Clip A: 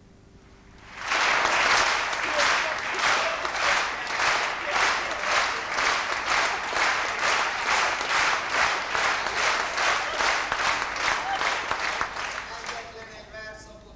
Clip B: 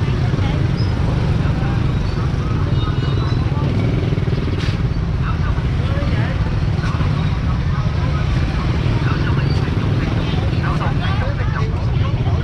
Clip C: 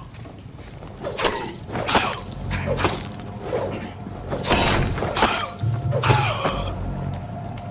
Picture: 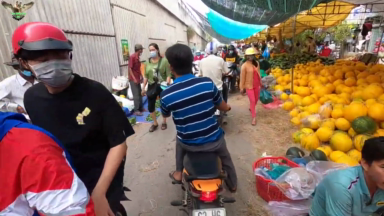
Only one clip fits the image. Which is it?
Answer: B